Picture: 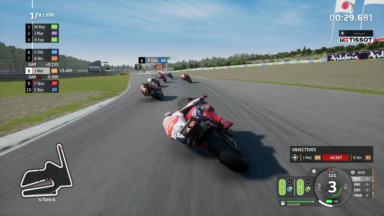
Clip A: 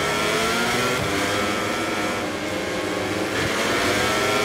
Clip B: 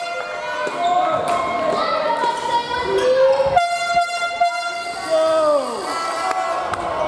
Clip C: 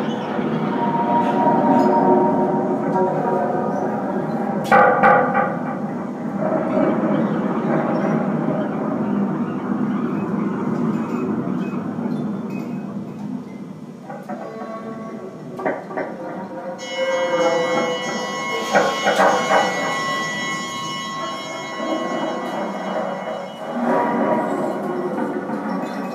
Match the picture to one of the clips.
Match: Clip A